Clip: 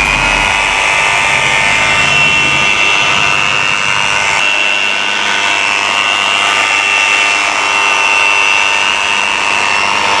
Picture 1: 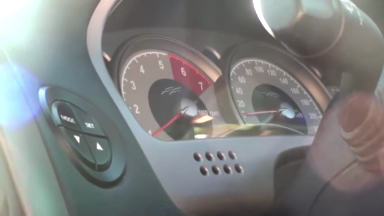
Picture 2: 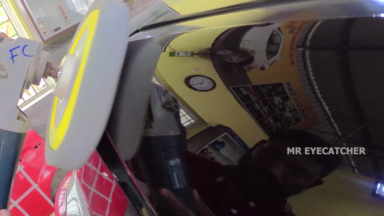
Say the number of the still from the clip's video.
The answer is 2